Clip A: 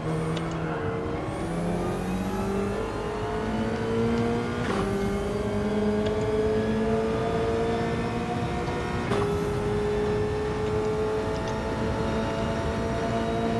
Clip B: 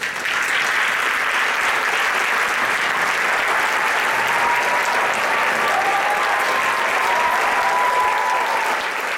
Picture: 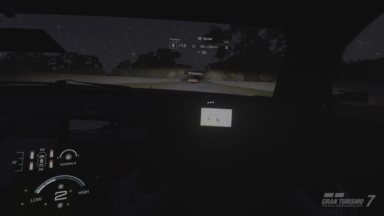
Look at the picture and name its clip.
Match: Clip A